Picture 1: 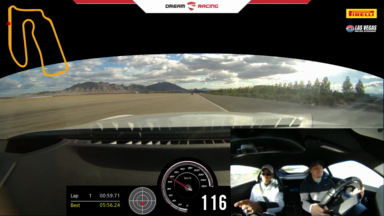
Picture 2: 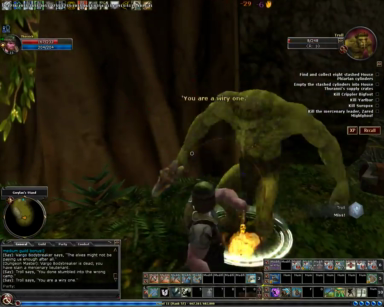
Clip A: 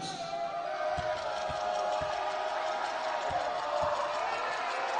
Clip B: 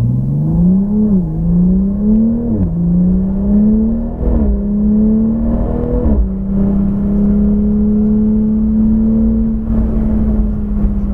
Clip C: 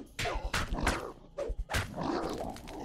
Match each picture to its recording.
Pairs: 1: B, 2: C